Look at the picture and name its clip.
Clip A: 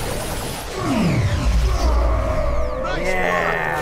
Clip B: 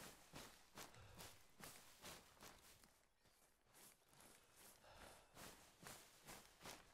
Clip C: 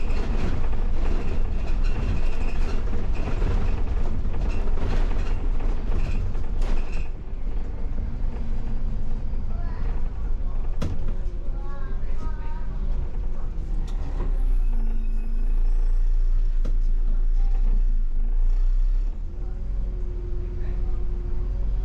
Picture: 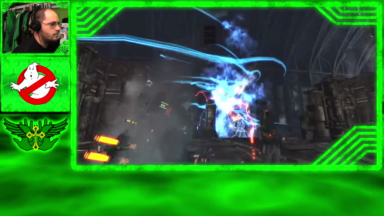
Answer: A